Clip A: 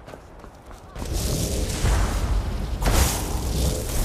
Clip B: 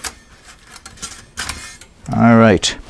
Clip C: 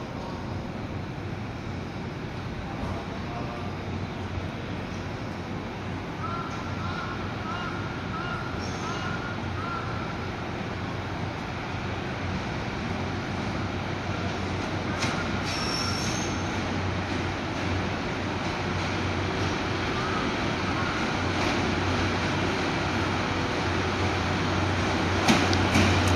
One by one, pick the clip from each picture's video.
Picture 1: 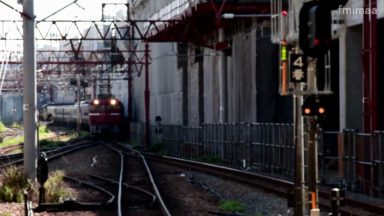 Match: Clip C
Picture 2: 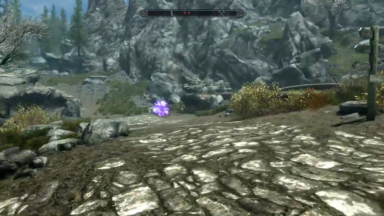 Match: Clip A